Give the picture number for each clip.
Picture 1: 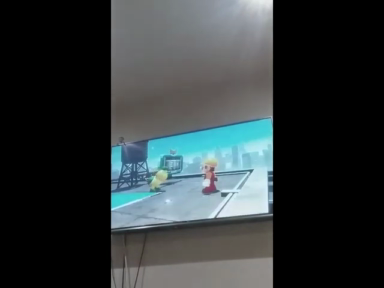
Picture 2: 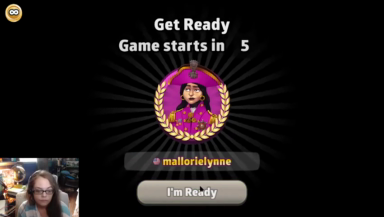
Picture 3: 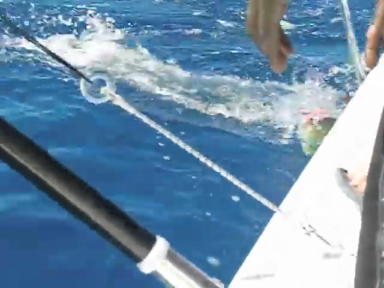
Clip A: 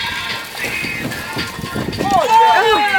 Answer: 3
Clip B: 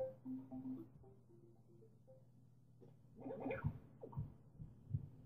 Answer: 1